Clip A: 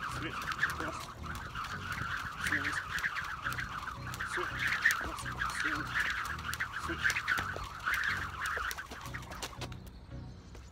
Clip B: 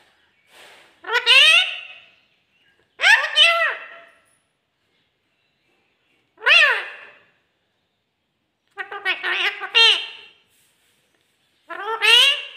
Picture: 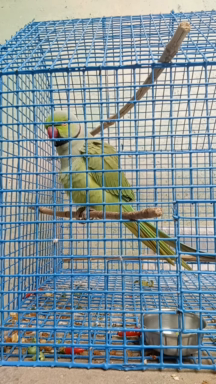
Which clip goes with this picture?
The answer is B